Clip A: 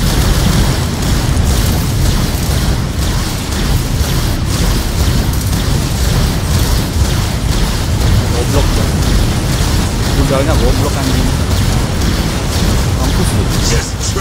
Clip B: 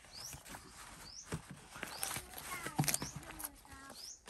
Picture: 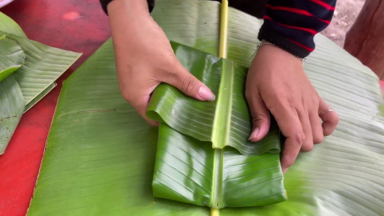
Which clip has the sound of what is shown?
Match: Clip B